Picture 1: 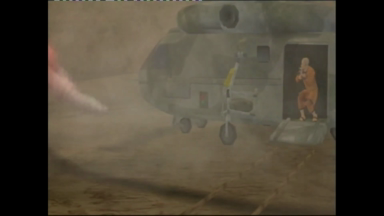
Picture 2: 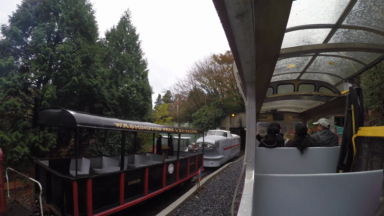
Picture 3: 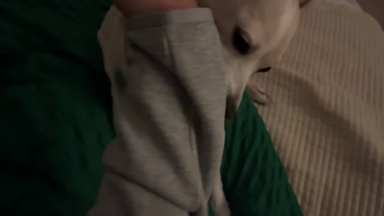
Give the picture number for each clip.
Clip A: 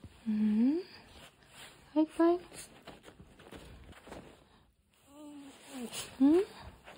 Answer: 3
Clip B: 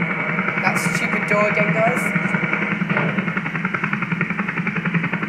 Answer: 1